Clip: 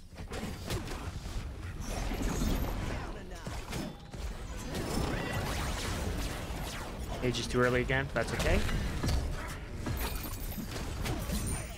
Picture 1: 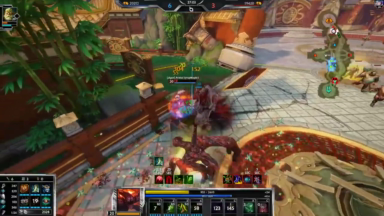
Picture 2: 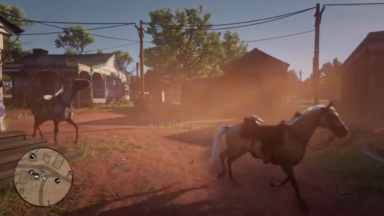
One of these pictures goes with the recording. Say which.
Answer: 1